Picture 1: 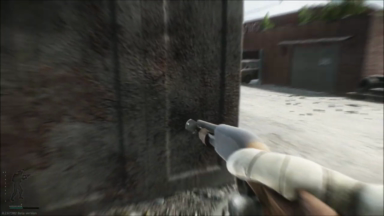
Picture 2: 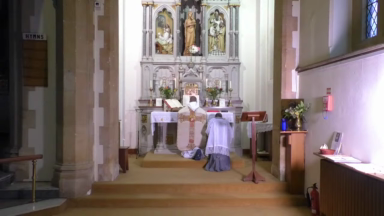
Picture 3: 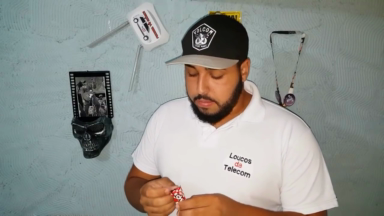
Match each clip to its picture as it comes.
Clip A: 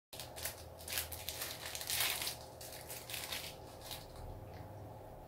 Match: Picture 3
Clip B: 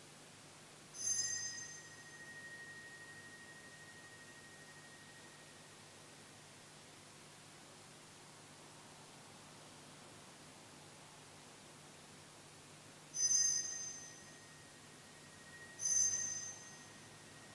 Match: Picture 2